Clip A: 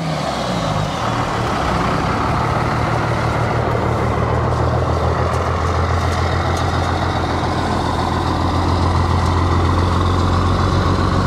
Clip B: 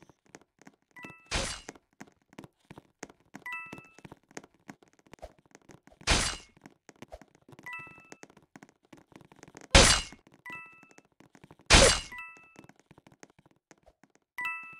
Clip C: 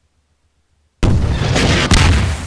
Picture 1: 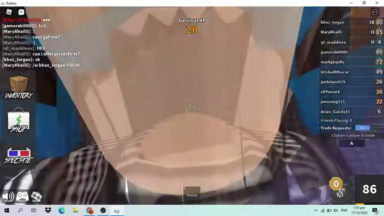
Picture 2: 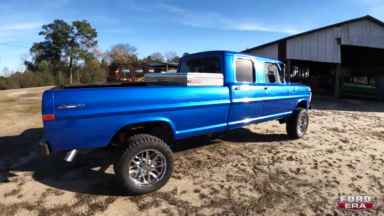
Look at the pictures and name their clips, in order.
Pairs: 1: B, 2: A